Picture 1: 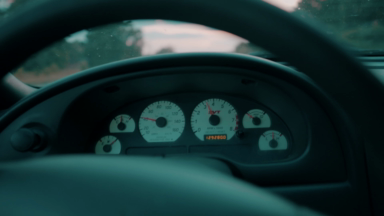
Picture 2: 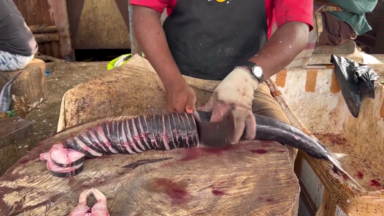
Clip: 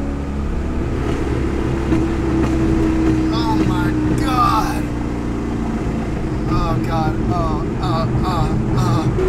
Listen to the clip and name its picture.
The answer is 1